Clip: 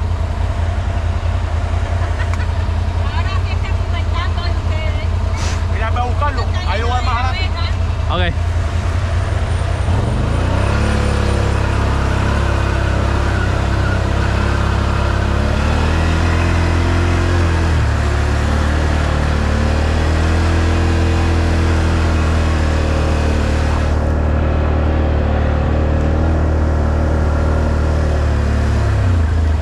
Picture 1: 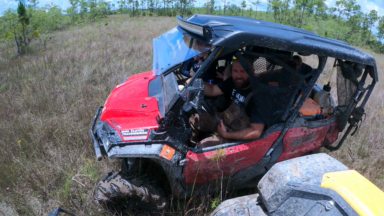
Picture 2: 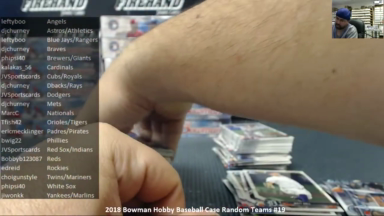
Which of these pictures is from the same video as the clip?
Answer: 1